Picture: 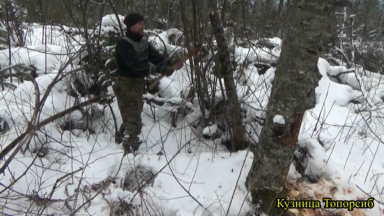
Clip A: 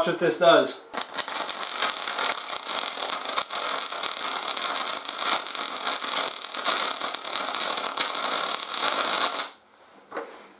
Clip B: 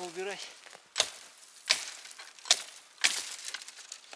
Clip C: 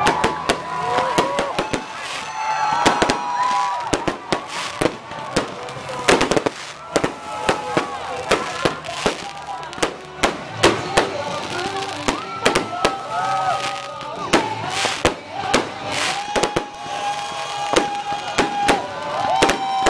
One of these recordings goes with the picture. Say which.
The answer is B